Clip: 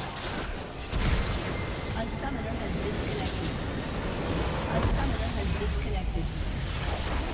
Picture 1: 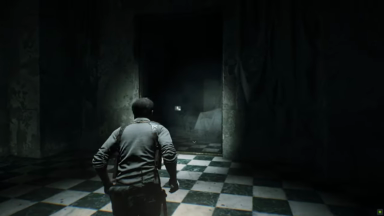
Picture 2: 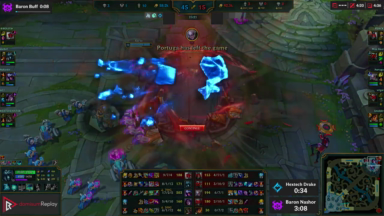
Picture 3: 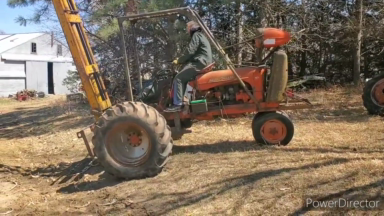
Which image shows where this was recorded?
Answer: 2